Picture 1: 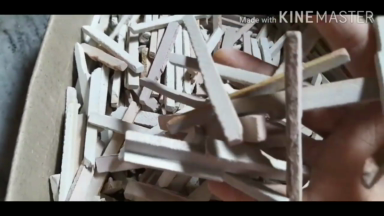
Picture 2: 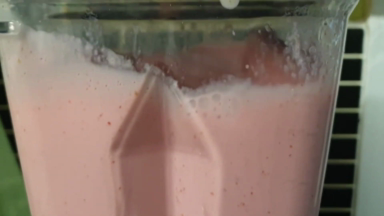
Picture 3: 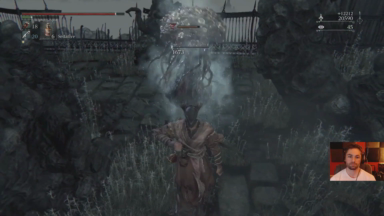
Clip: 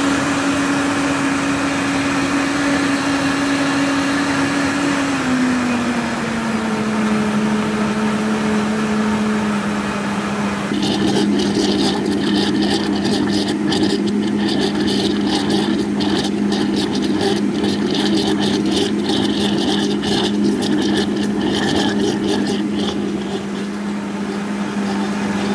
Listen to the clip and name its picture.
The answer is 2